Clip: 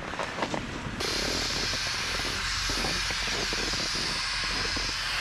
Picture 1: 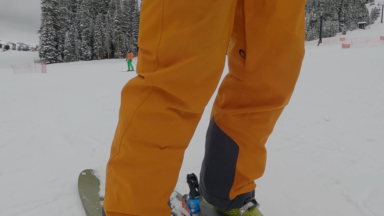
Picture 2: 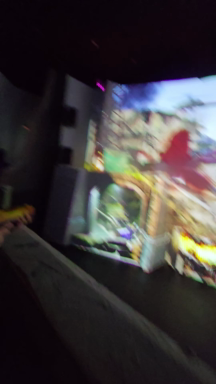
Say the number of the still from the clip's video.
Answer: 1